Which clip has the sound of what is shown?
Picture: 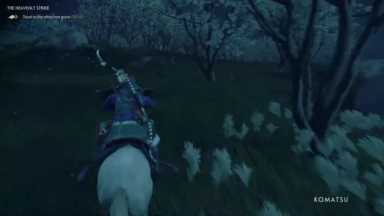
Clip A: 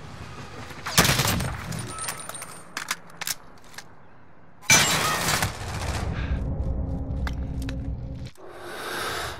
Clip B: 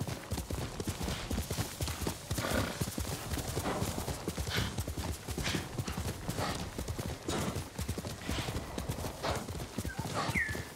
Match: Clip B